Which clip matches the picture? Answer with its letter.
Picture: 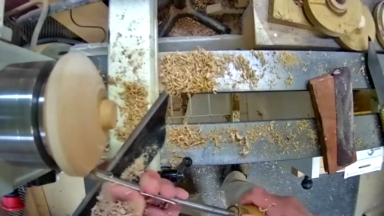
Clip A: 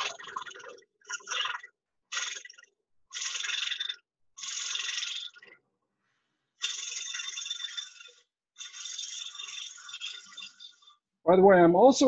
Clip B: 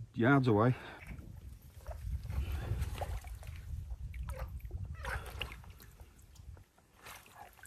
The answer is A